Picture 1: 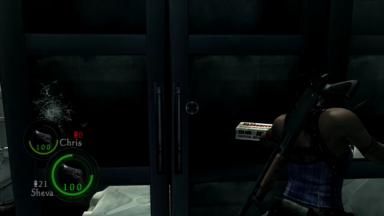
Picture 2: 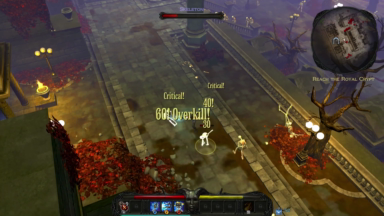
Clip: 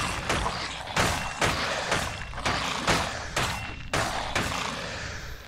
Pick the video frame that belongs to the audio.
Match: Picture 2